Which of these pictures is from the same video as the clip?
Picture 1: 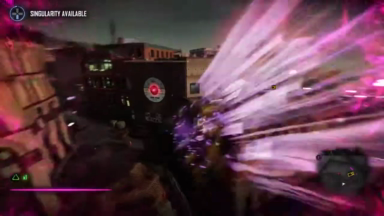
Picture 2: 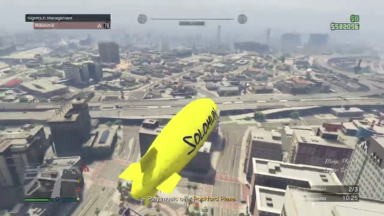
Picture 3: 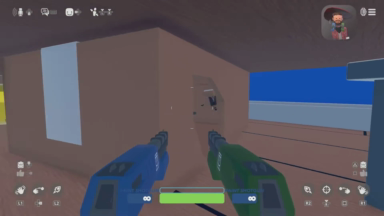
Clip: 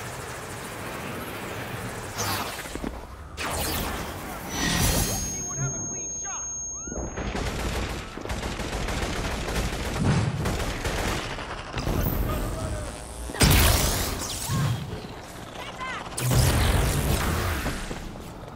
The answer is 1